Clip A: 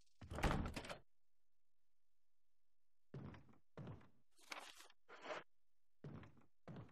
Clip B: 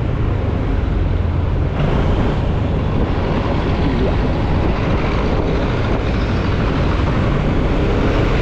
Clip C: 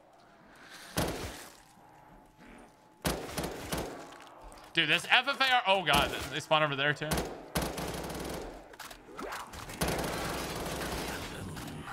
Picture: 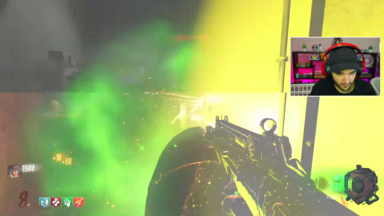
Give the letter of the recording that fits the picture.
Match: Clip C